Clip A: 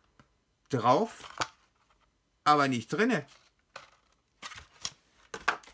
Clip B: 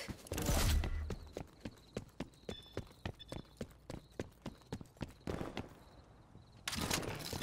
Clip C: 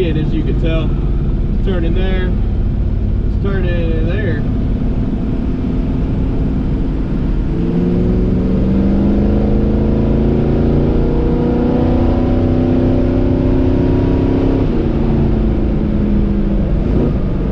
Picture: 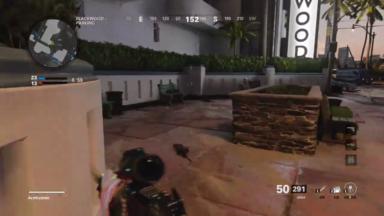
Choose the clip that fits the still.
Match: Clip B